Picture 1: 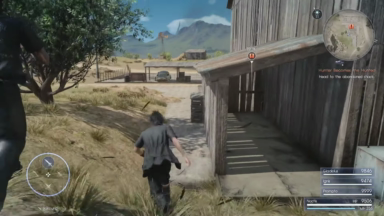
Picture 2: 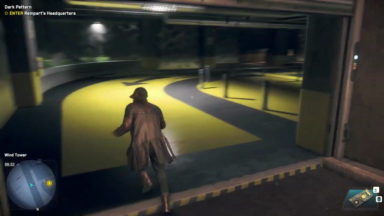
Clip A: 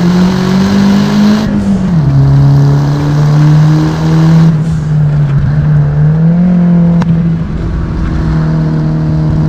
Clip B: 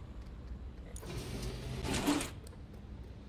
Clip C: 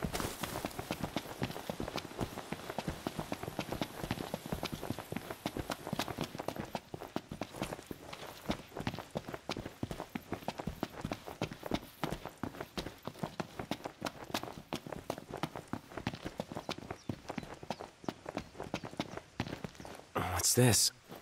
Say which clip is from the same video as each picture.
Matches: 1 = C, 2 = B